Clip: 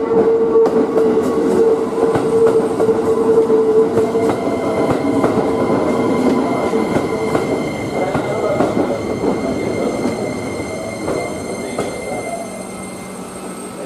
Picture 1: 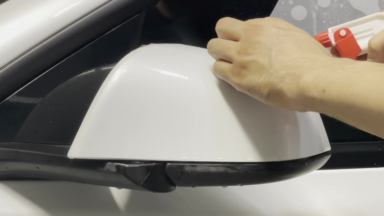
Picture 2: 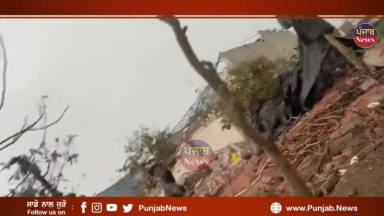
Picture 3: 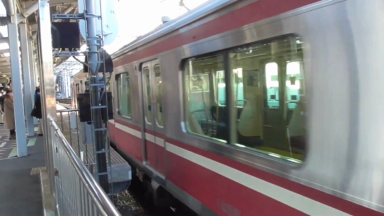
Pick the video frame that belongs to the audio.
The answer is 3